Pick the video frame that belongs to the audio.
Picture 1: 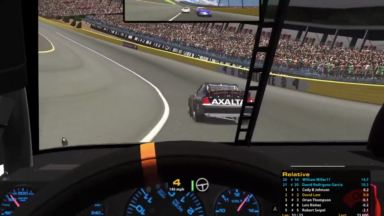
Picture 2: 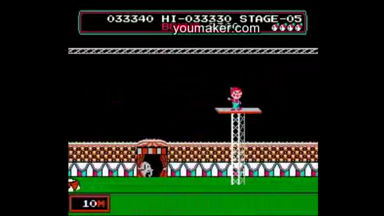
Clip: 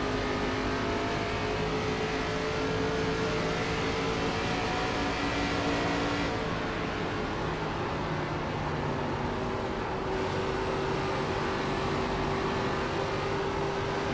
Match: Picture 1